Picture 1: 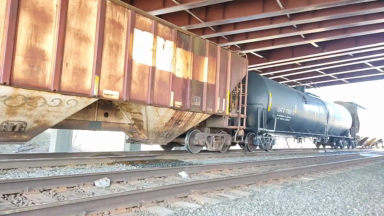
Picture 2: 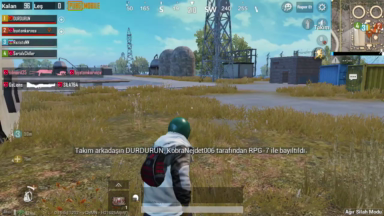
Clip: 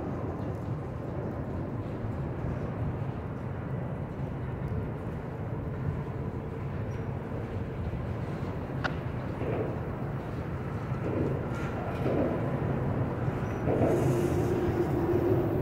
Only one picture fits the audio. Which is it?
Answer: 1